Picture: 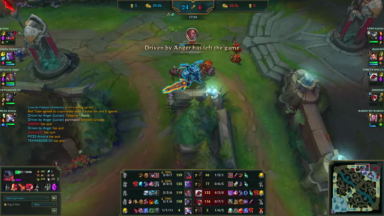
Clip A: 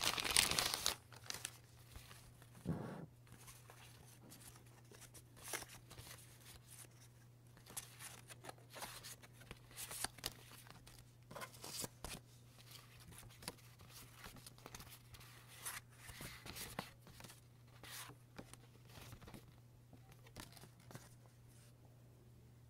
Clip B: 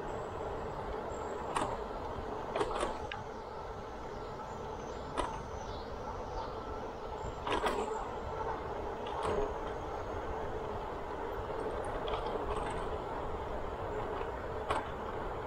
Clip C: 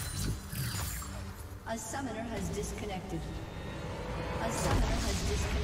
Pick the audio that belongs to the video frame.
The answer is C